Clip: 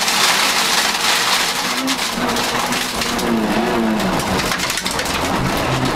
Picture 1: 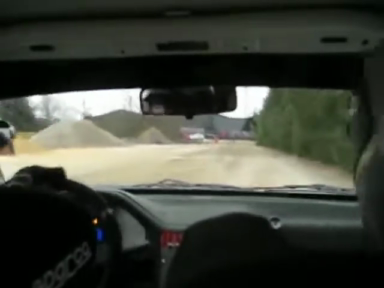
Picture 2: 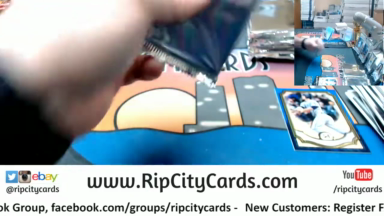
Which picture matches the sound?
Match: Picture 1